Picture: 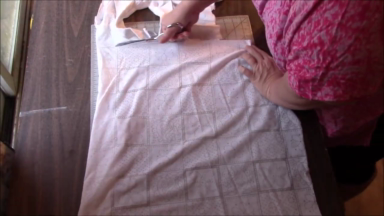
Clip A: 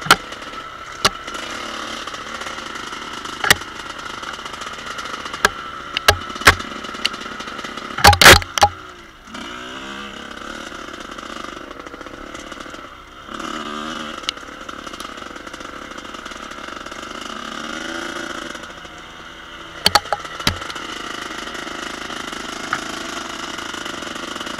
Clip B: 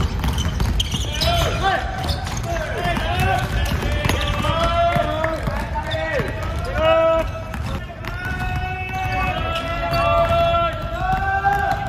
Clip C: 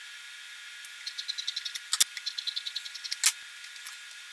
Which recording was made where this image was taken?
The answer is C